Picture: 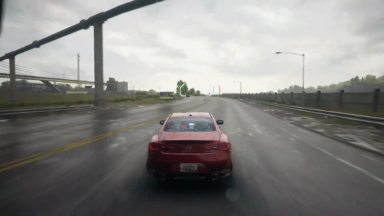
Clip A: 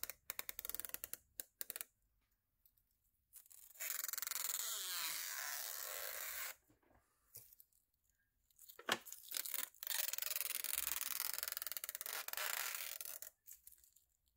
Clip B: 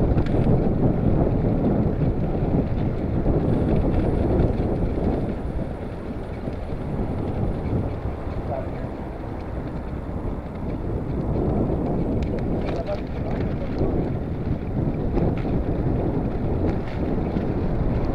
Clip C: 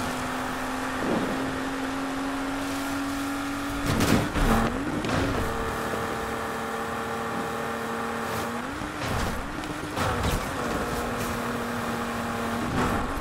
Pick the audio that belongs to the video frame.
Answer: C